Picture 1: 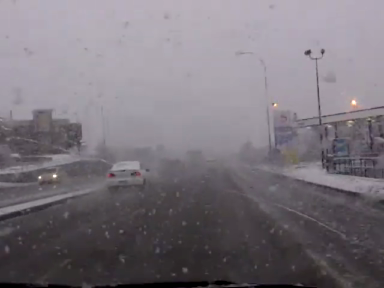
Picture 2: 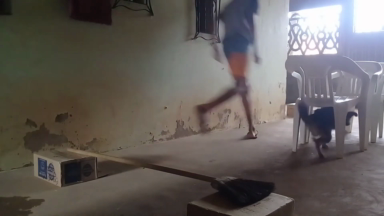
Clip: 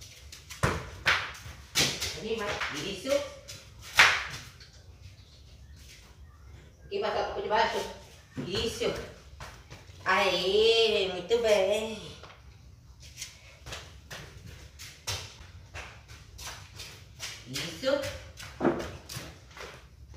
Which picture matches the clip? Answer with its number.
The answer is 2